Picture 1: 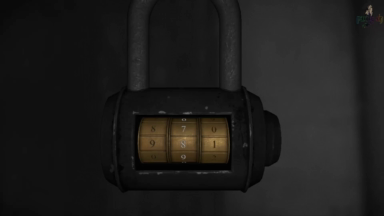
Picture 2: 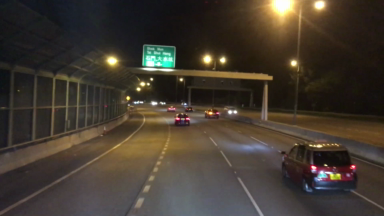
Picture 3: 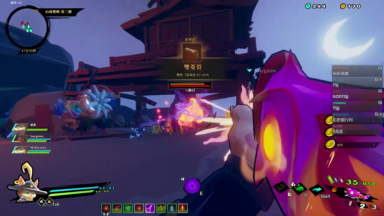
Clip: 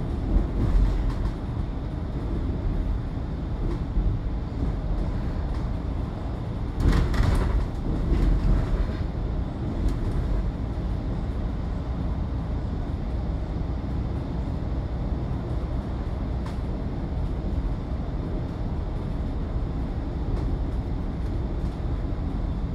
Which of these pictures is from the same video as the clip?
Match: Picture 2